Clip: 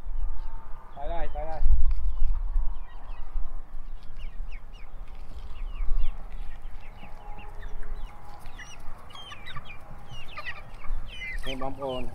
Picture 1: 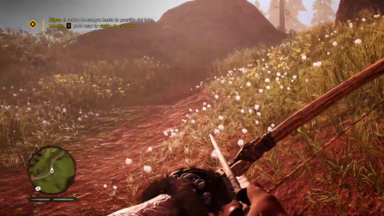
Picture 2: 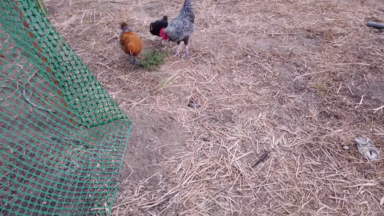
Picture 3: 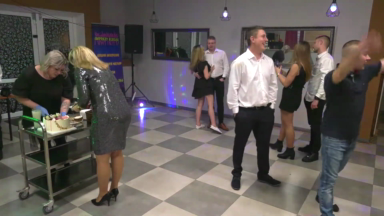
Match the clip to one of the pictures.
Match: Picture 2